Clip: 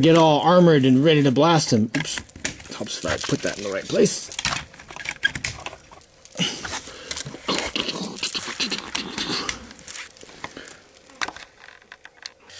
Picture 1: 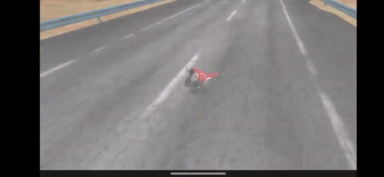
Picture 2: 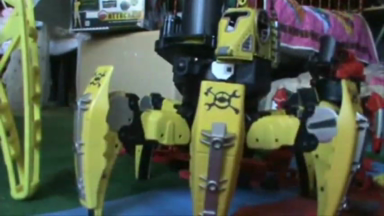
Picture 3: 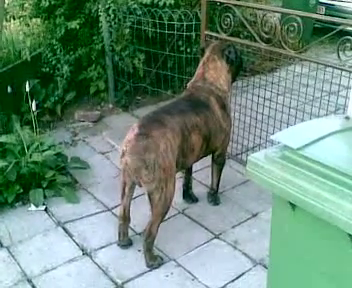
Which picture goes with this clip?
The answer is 2